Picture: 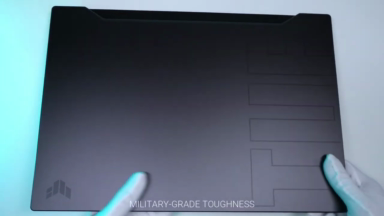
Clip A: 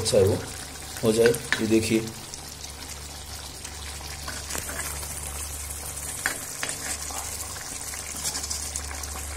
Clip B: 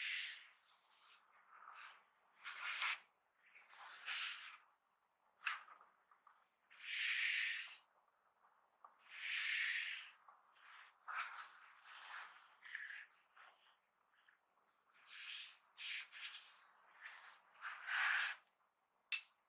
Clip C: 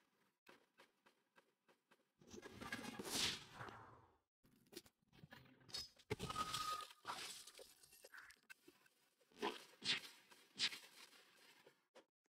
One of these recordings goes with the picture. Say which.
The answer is B